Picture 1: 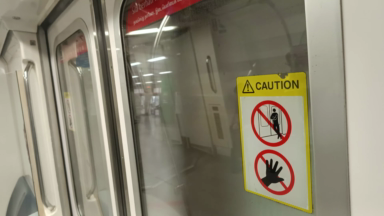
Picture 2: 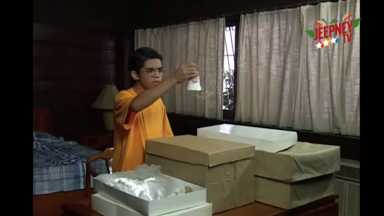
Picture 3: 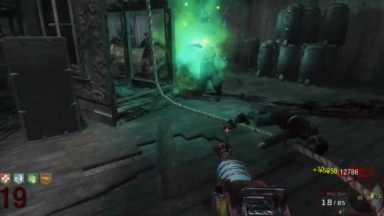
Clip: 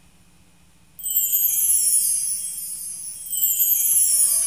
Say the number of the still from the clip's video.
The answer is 2